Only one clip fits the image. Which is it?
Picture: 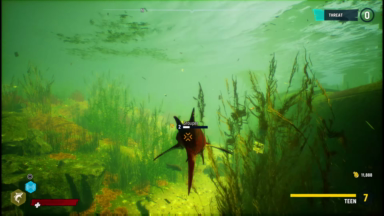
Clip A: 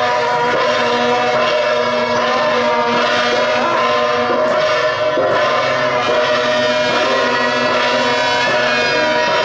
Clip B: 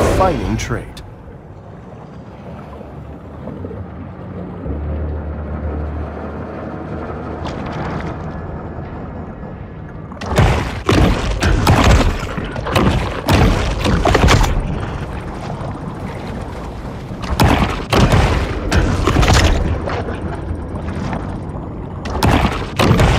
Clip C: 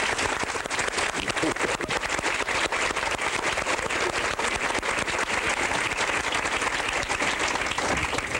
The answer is B